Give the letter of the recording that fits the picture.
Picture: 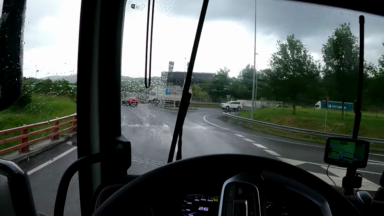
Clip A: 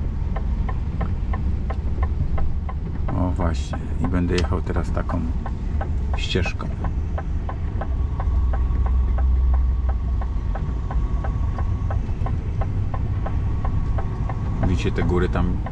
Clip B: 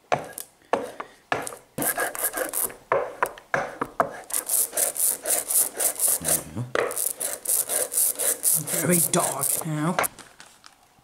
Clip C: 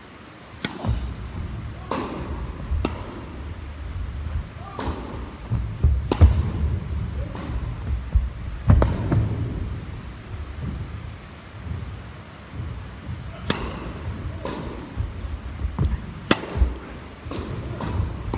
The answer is A